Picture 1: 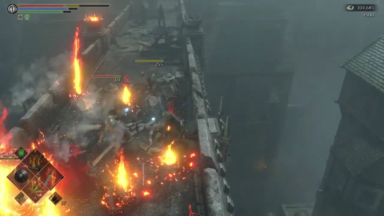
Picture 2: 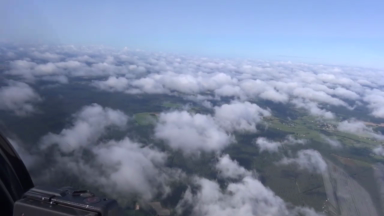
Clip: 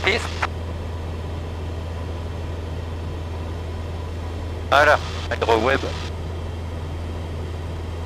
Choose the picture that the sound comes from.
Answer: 2